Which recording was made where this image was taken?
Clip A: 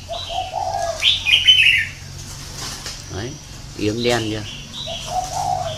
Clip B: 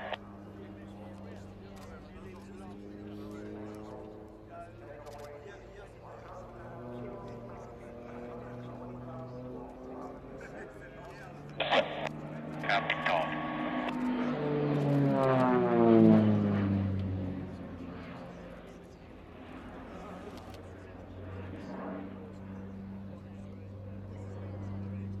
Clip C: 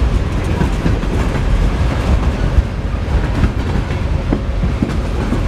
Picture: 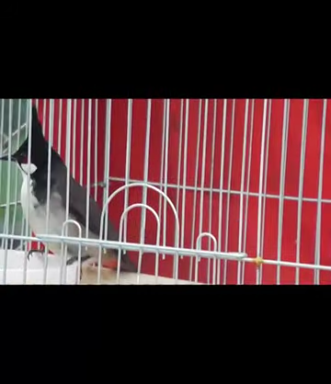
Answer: A